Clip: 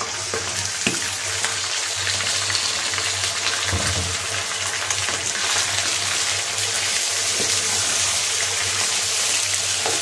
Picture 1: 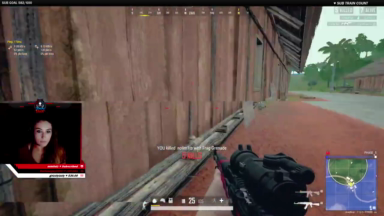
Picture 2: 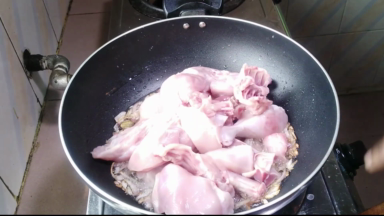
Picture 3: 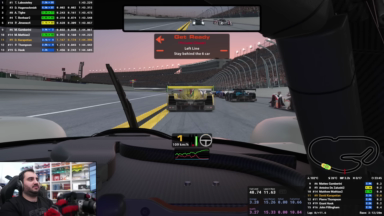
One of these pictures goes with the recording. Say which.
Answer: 2